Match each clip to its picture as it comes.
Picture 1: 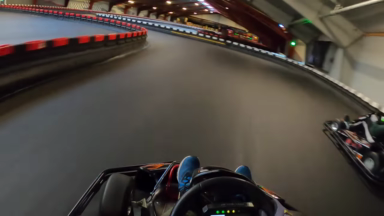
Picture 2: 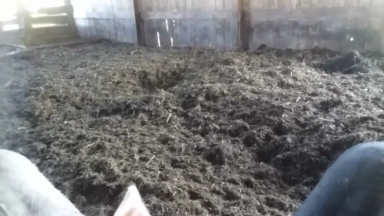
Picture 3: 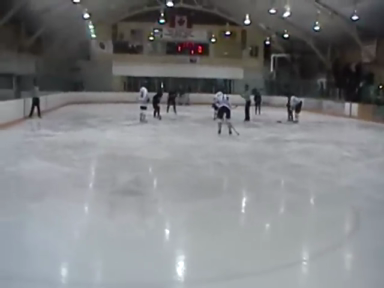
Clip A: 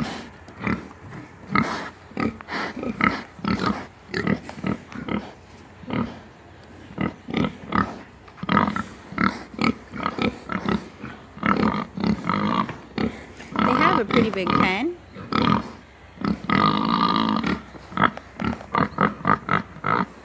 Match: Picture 2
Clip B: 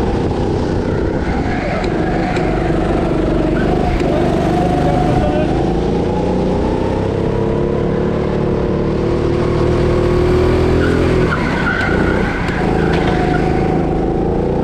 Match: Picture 1